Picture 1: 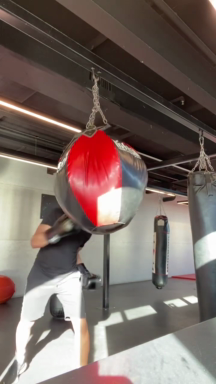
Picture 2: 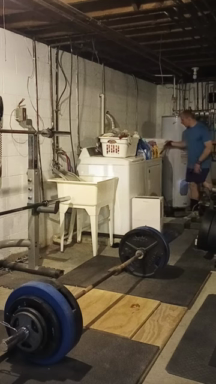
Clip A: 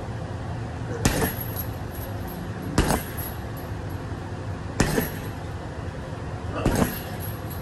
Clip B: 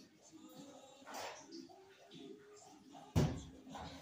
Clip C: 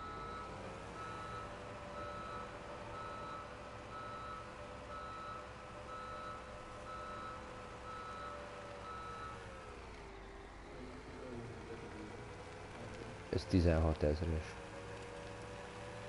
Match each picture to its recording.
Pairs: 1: A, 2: B